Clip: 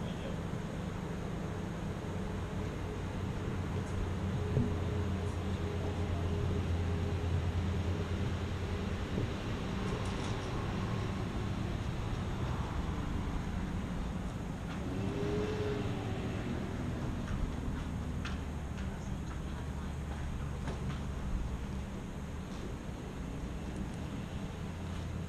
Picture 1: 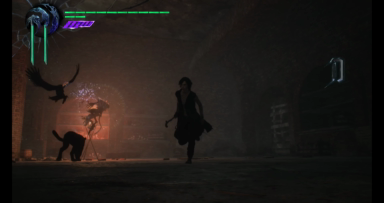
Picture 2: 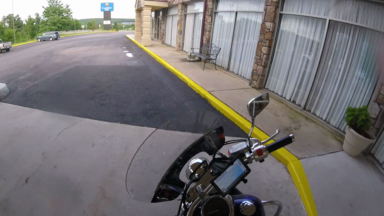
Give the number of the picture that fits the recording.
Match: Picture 2